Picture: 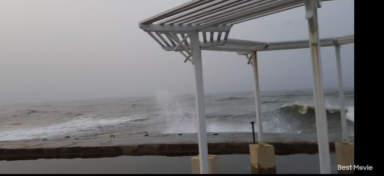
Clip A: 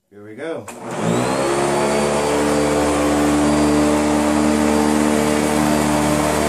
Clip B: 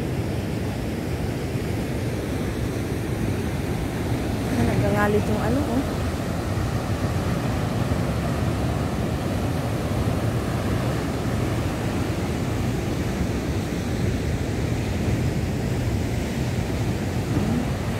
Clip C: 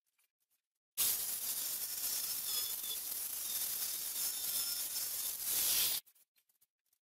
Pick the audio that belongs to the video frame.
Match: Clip B